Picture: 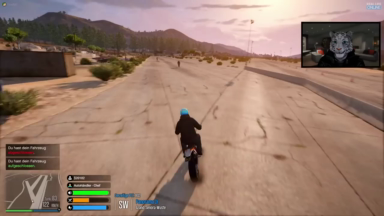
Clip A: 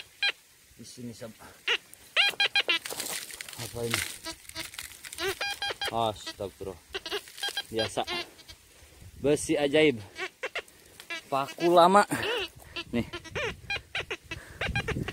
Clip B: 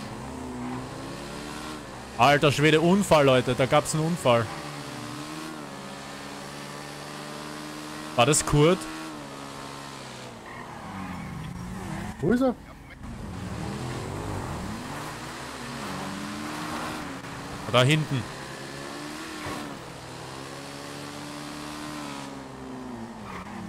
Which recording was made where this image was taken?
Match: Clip B